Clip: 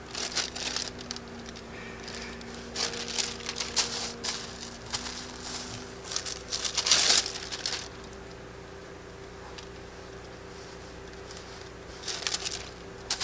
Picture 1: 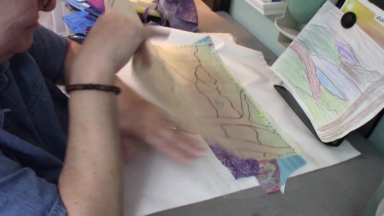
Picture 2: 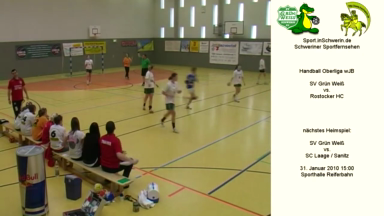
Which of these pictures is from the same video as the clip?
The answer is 1